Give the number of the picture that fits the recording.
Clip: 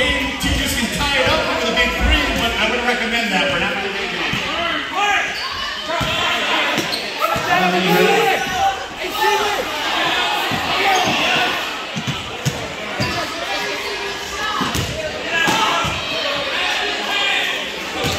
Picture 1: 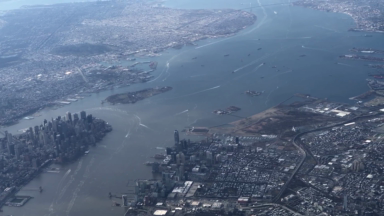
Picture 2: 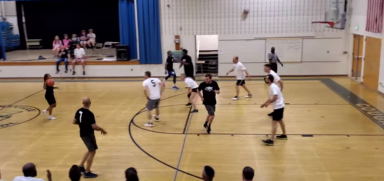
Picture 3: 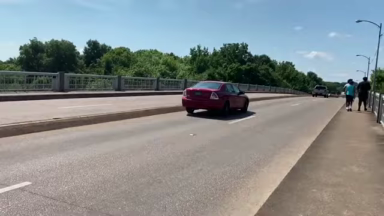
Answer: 2